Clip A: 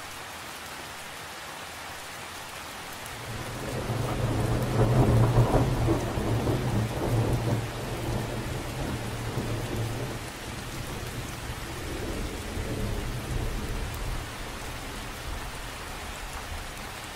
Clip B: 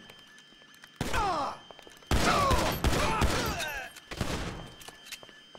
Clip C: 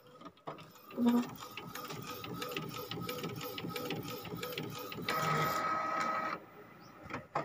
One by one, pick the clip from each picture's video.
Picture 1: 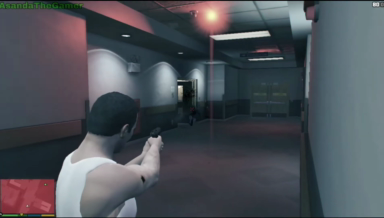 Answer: B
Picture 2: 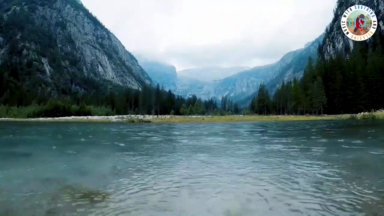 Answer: A